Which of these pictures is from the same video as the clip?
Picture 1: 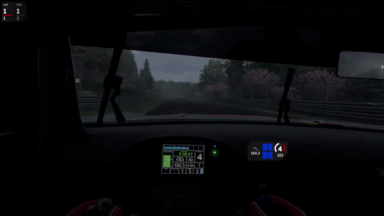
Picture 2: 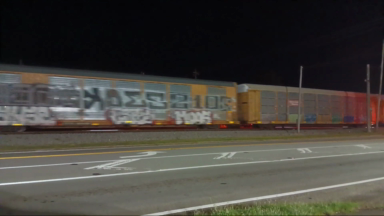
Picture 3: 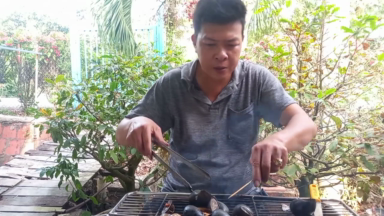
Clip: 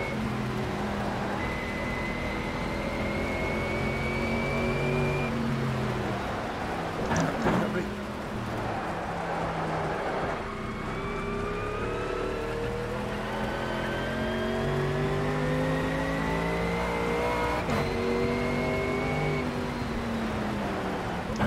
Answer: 1